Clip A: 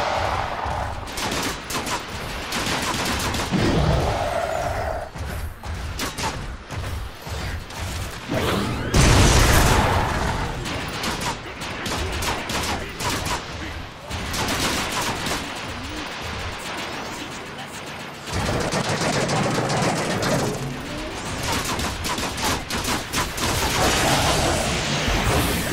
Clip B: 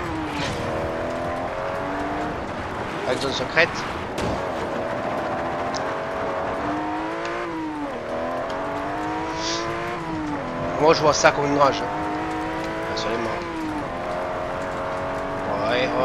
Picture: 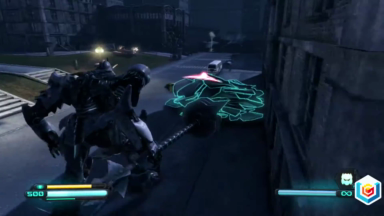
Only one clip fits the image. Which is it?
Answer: A